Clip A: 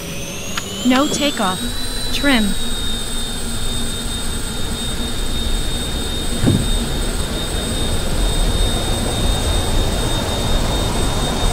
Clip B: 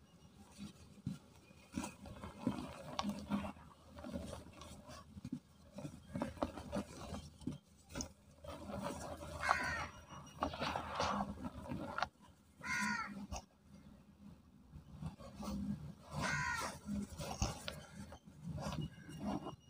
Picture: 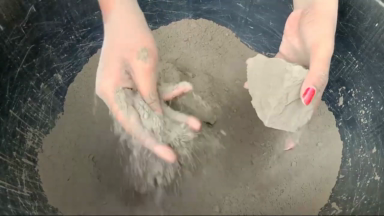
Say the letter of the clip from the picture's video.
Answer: B